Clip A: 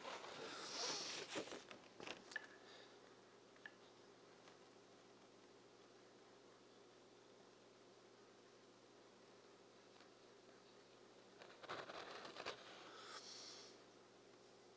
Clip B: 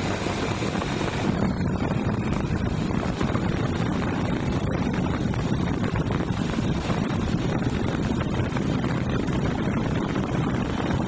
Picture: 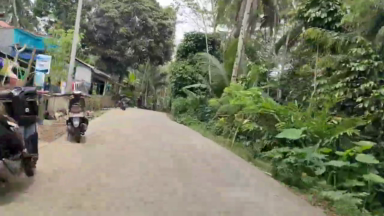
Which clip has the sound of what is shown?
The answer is B